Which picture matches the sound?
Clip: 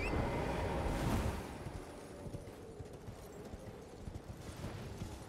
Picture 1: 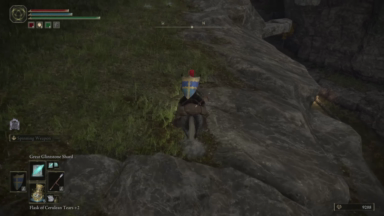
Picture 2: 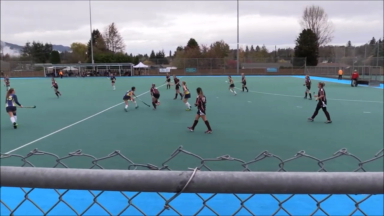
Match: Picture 1